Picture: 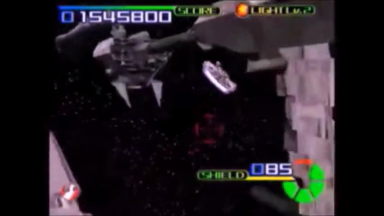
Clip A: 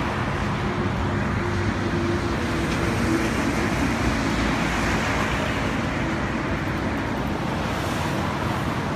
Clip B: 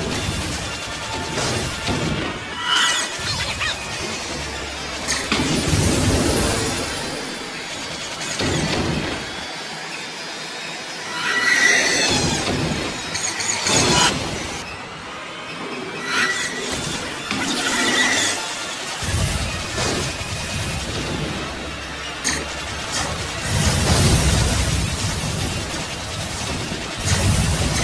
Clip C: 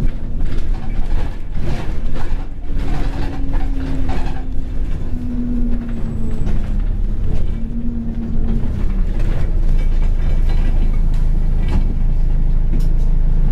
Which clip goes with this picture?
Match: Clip B